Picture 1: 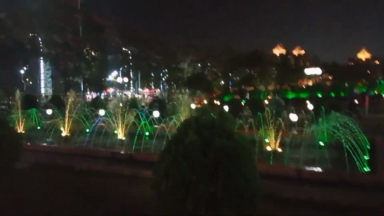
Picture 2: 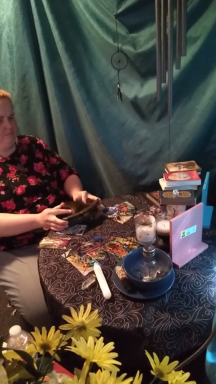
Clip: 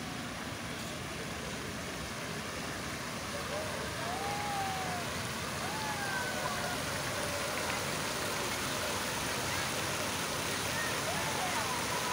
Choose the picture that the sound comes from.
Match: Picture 1